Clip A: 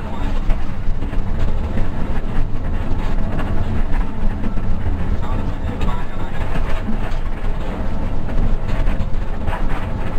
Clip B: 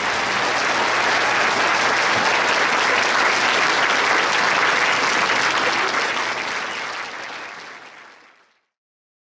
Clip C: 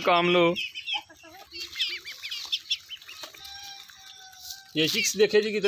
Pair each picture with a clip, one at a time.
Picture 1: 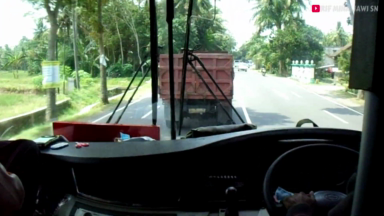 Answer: A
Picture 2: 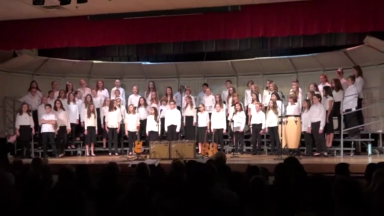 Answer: B